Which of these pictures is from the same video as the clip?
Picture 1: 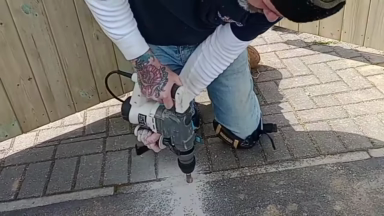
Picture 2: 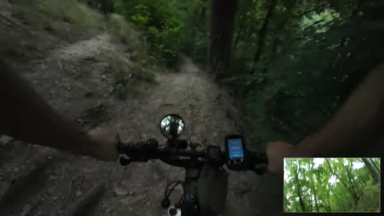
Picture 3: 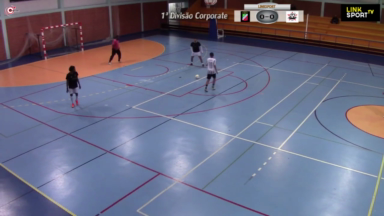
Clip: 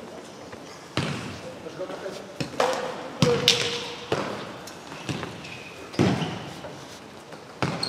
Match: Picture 3